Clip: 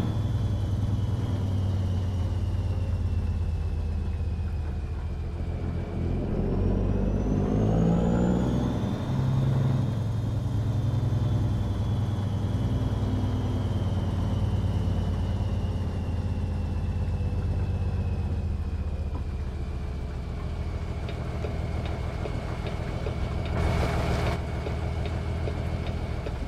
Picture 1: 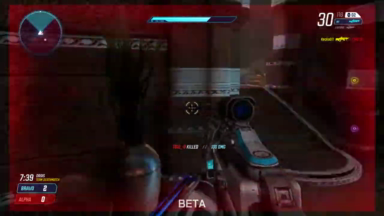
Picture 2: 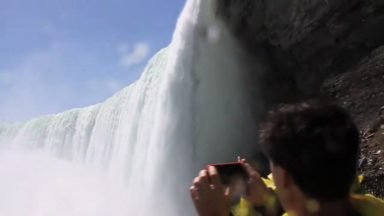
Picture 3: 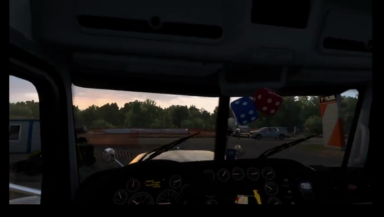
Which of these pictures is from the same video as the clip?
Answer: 3